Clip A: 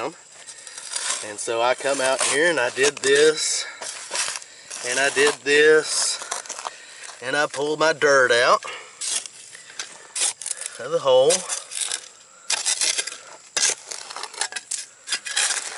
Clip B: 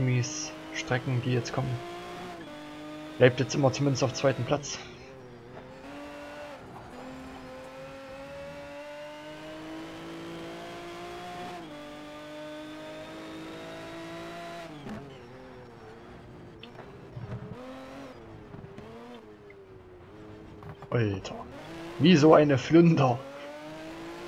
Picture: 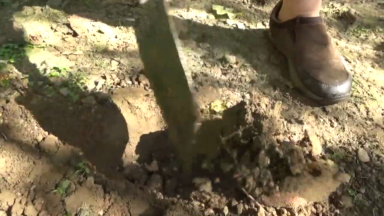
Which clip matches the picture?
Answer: A